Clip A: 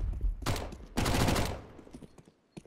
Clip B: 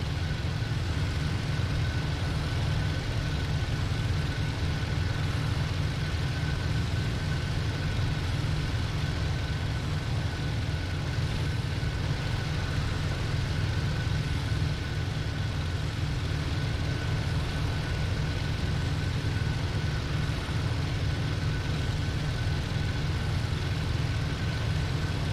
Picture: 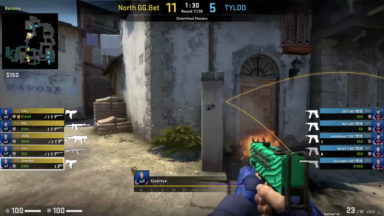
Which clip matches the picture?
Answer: A